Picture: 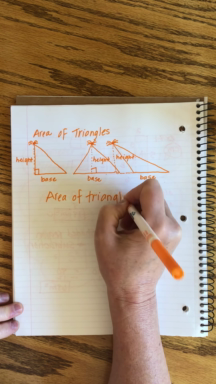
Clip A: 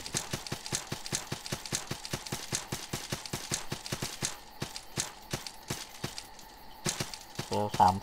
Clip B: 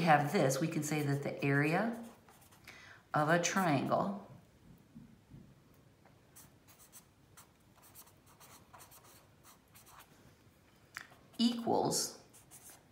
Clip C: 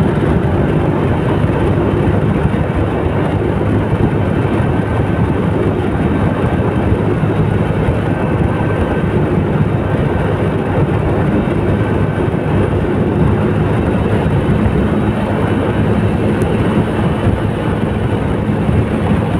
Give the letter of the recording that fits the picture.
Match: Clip B